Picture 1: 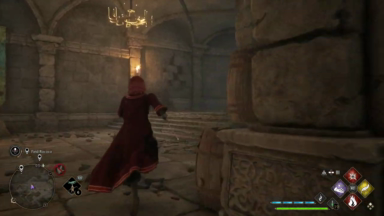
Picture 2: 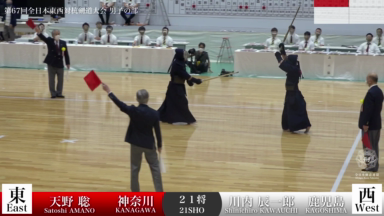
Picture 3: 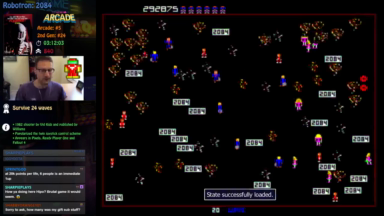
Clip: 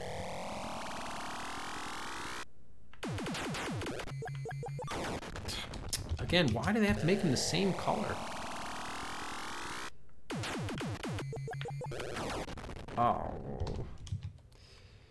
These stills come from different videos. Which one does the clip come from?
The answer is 3